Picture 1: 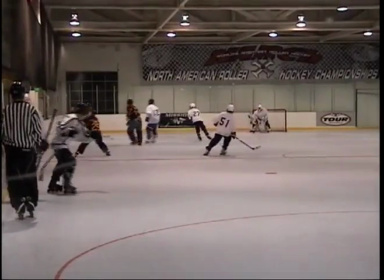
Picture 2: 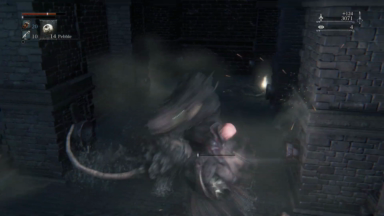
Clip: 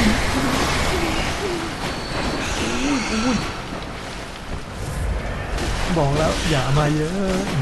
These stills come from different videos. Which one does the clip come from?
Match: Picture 2